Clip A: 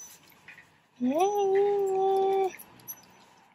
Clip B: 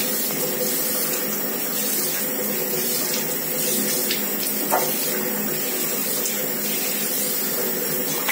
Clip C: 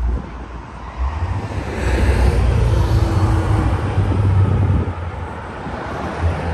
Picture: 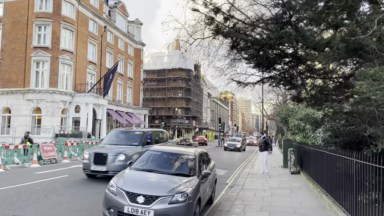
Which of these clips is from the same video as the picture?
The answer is C